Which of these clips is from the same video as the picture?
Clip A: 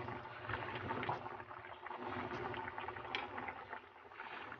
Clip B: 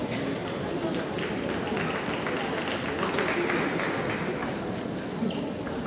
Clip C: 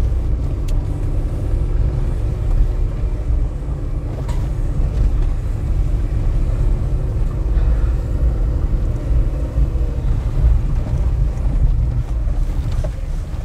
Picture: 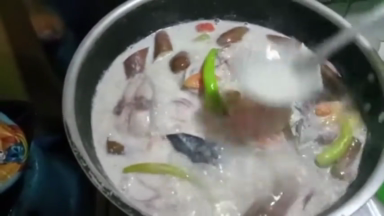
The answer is A